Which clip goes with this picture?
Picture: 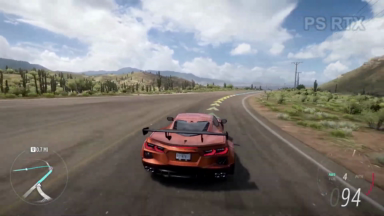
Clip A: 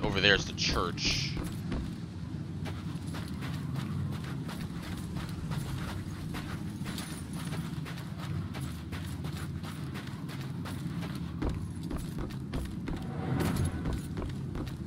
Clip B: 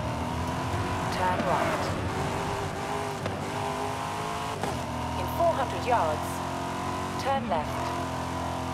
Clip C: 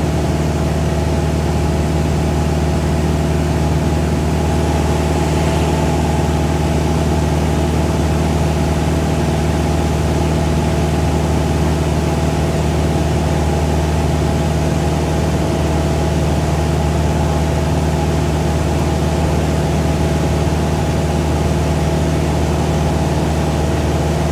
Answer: B